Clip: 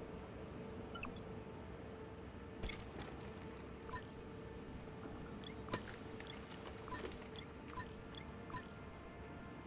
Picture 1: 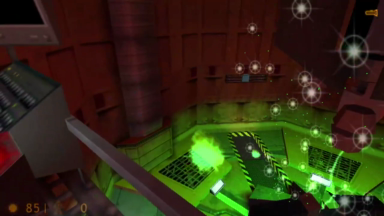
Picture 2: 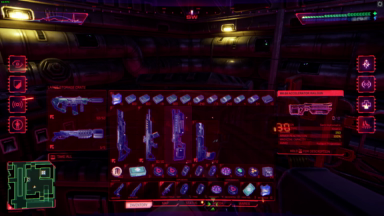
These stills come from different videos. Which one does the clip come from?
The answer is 2